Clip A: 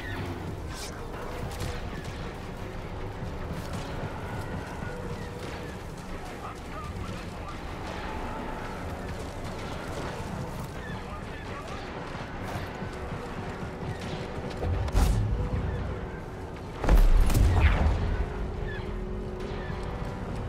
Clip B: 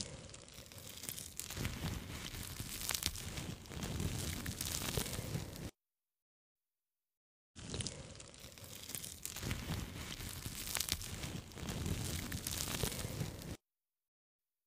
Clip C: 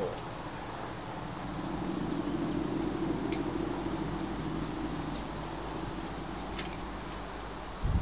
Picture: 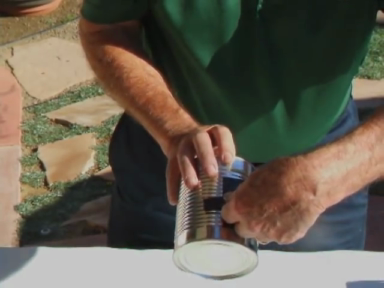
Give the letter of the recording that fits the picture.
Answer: C